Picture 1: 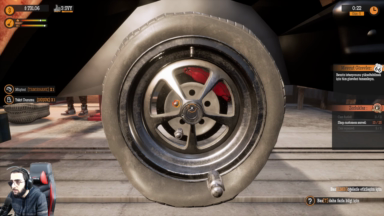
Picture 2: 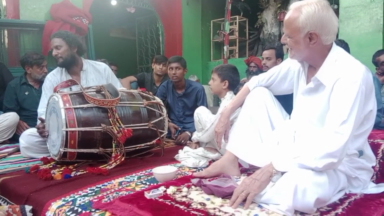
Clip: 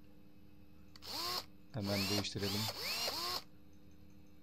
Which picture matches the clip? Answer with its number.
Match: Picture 1